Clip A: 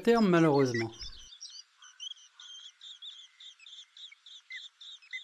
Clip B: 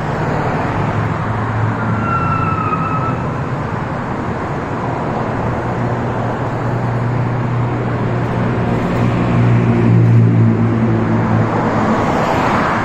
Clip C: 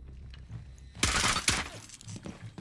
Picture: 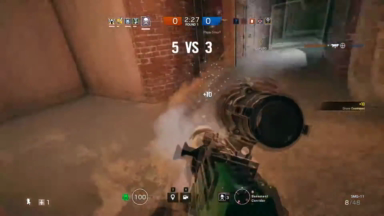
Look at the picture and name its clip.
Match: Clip C